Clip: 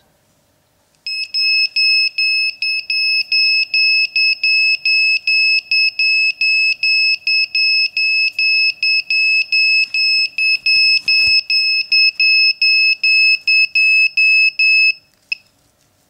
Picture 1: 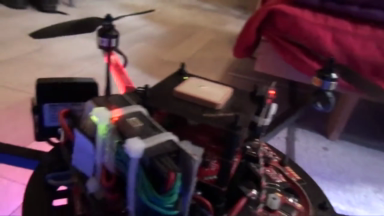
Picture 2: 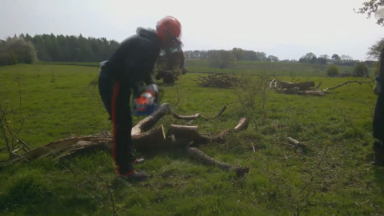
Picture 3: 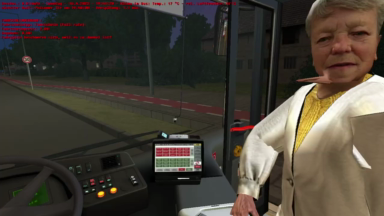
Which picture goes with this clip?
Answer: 1